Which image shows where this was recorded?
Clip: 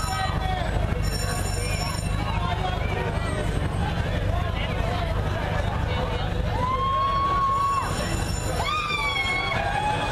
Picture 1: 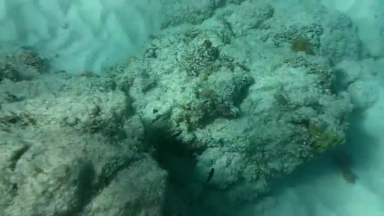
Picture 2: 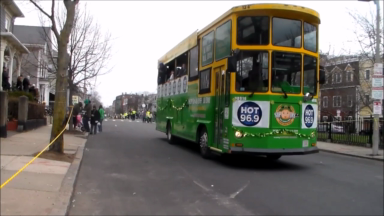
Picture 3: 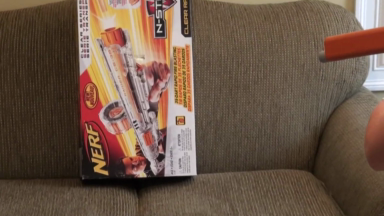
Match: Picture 2